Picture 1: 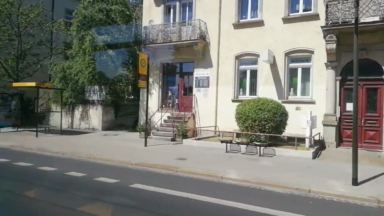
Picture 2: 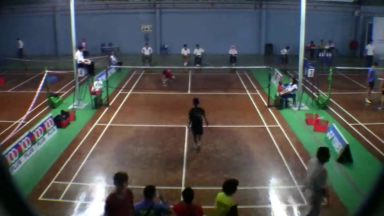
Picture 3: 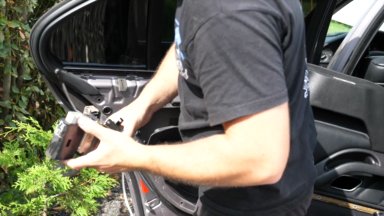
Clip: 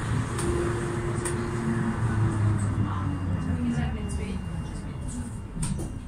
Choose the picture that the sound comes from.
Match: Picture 1